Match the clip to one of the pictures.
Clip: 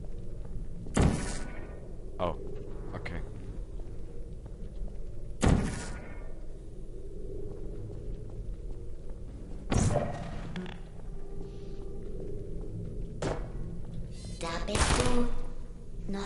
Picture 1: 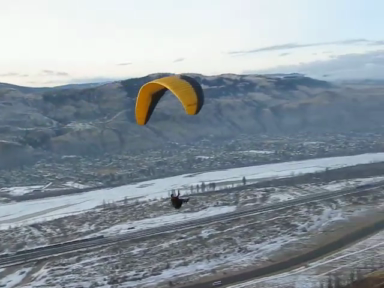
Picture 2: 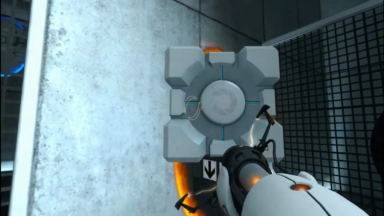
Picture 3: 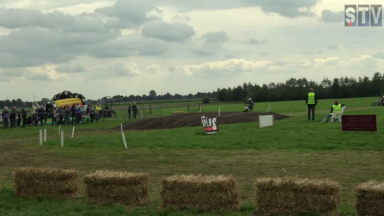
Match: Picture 2